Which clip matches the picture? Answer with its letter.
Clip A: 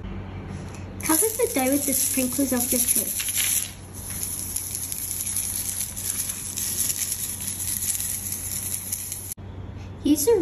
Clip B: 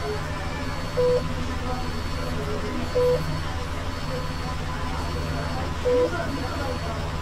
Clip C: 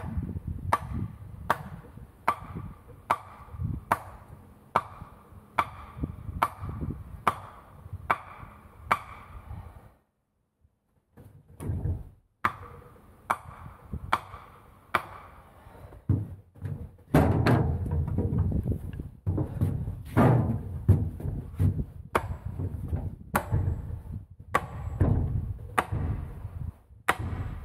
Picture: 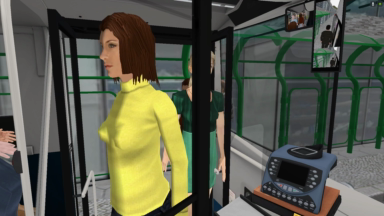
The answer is B